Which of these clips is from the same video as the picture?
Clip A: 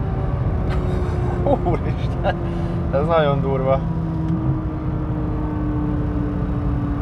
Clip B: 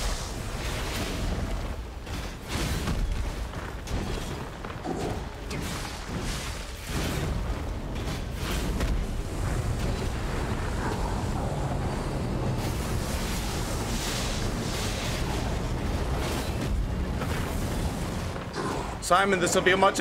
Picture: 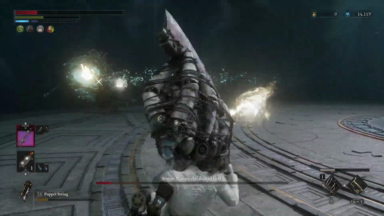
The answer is B